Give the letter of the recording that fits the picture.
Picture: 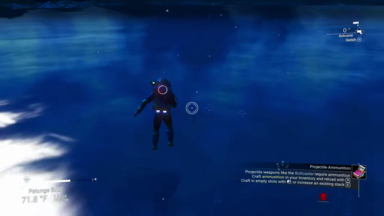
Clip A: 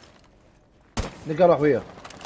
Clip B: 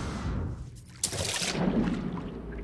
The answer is B